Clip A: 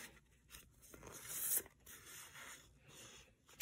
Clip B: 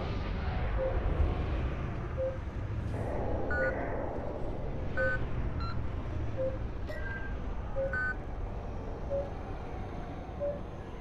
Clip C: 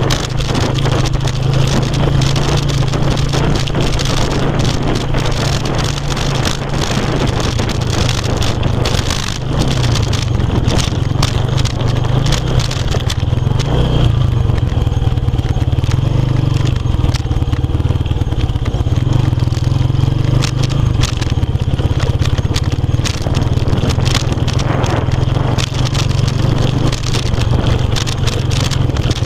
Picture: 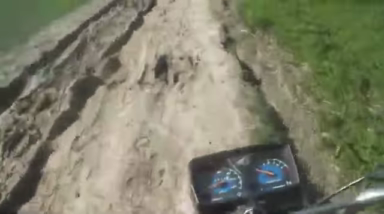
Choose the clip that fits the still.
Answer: C